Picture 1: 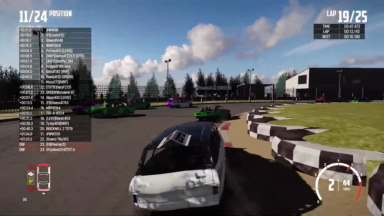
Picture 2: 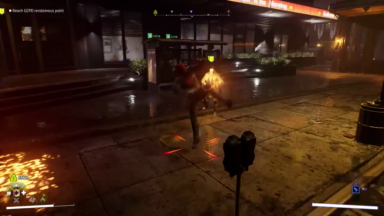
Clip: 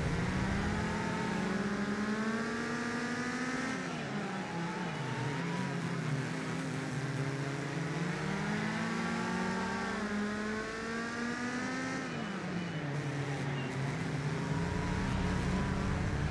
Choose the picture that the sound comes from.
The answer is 1